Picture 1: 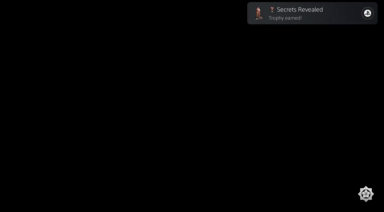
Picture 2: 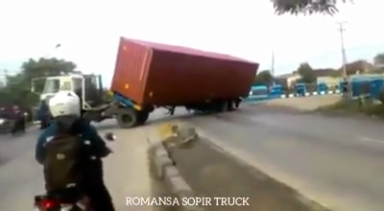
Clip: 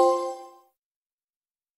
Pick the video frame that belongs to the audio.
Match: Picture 1